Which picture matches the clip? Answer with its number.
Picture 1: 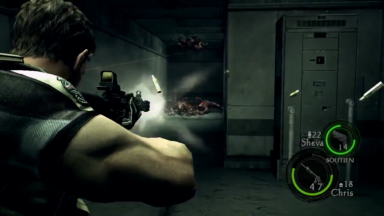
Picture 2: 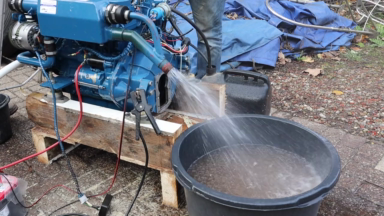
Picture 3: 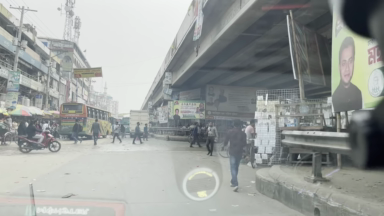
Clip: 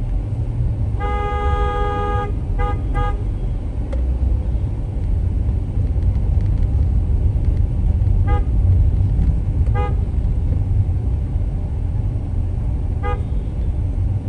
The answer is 3